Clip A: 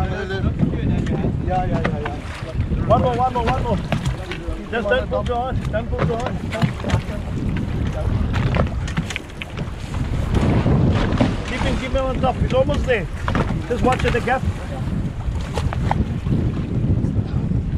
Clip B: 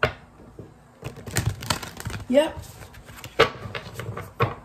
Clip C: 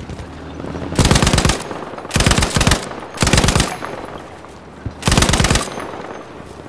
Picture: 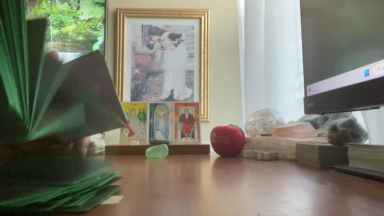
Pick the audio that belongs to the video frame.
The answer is B